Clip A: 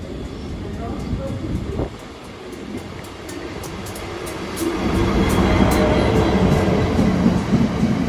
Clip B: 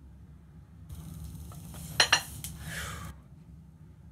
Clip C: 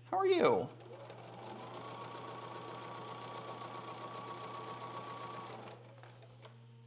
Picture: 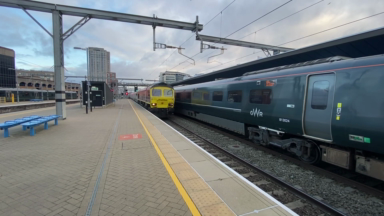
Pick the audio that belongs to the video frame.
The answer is A